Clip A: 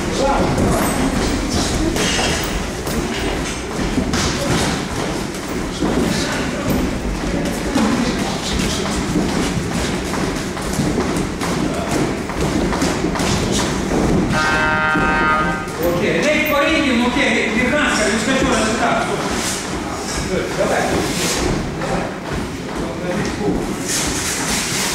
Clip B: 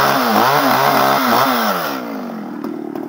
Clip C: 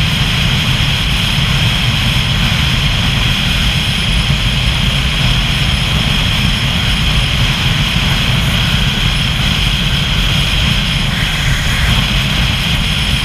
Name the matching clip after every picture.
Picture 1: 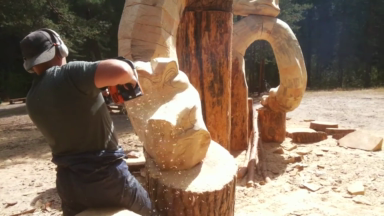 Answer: B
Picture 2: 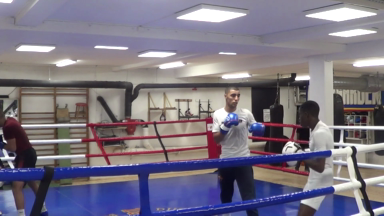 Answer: A